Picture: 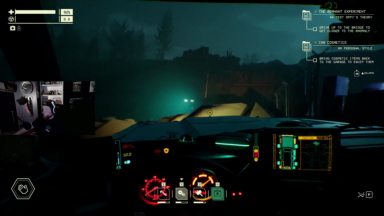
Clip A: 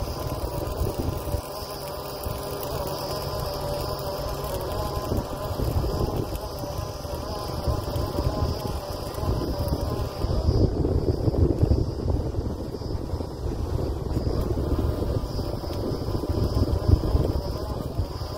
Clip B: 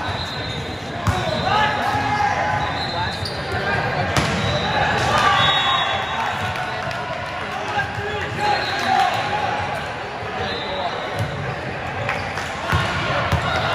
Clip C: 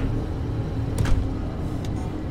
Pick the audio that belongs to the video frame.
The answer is C